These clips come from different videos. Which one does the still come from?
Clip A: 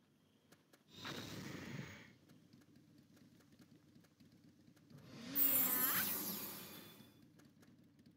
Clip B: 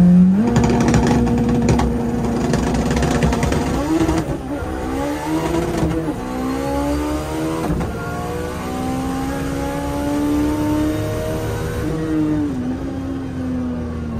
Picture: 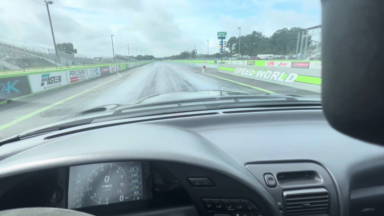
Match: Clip B